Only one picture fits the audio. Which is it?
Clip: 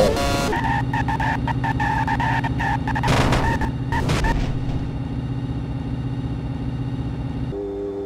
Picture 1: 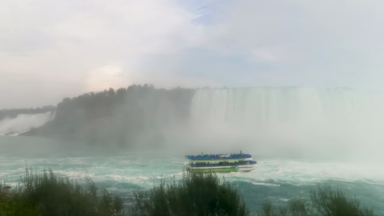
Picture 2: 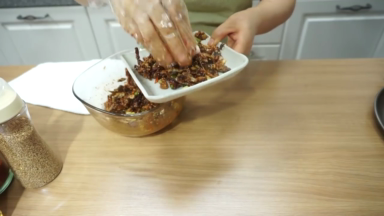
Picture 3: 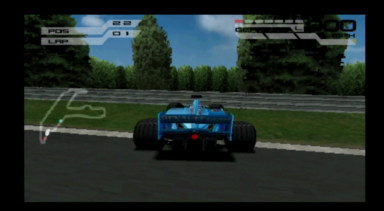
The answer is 3